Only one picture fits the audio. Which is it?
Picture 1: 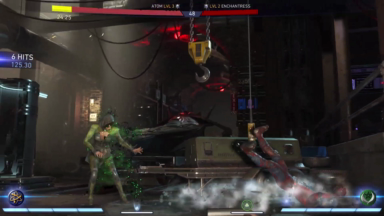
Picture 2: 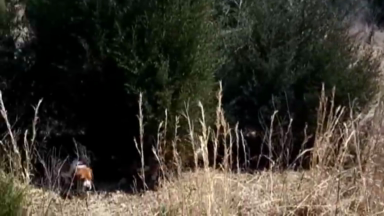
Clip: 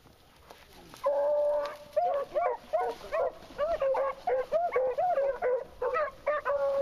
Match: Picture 2